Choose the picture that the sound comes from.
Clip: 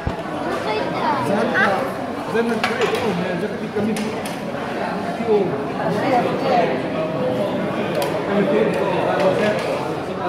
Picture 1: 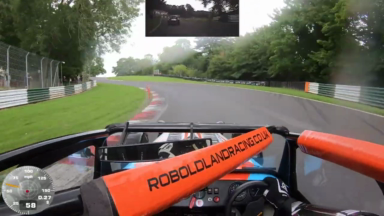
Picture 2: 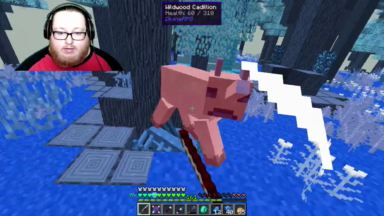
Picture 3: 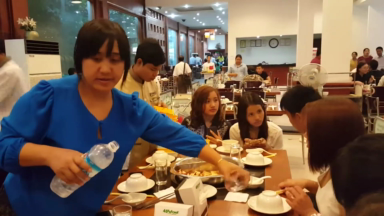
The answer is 3